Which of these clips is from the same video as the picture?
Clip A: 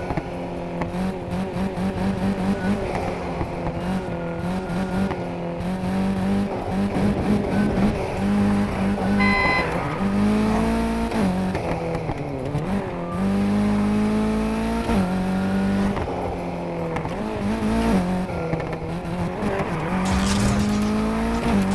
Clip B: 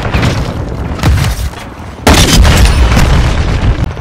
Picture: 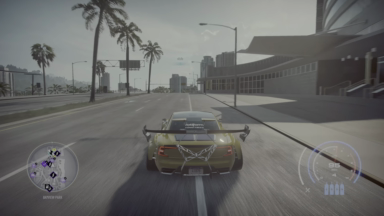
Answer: A